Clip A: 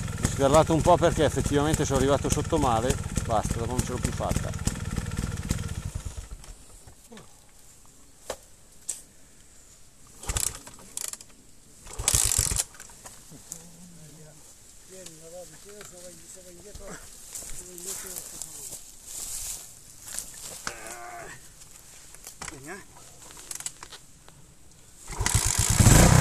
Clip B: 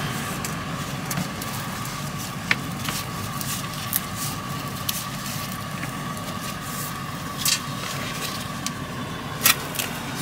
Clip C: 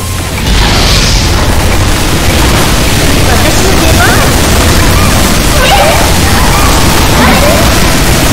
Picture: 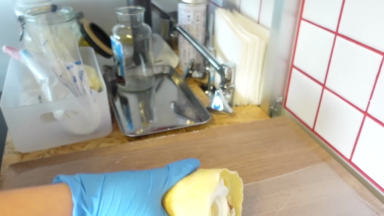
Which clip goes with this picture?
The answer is B